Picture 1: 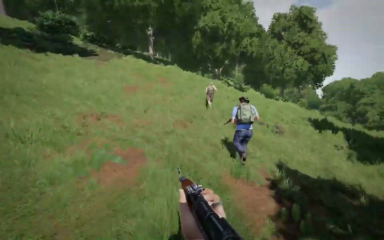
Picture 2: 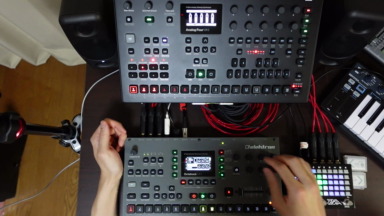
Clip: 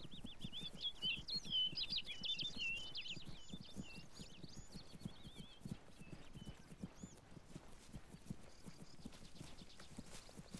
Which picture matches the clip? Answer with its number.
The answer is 1